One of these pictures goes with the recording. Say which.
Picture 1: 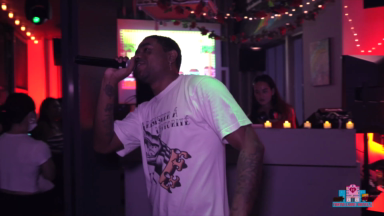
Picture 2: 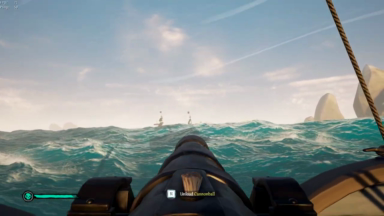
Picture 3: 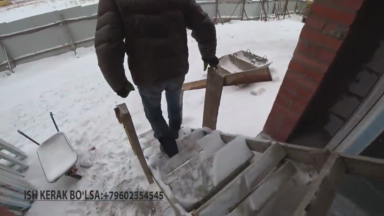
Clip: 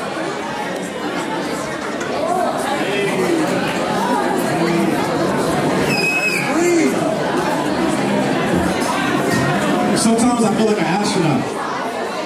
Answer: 1